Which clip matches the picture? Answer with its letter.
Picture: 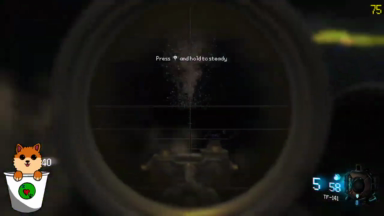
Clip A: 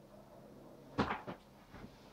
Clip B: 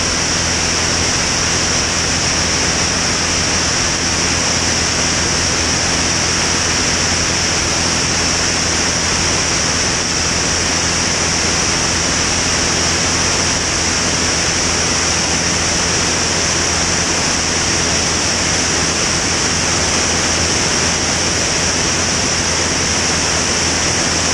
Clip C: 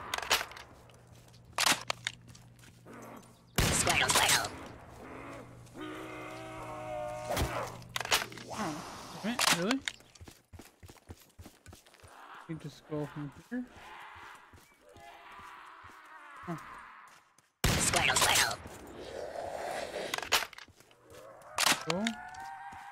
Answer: C